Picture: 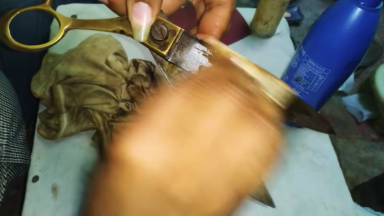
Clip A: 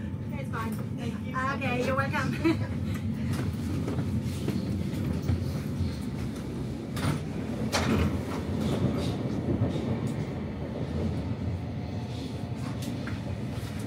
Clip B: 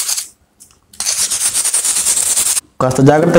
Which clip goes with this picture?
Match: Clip B